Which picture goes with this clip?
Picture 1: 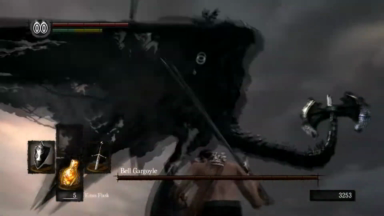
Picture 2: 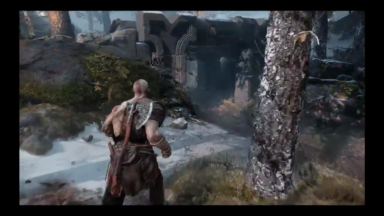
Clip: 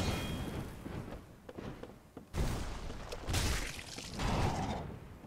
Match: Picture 1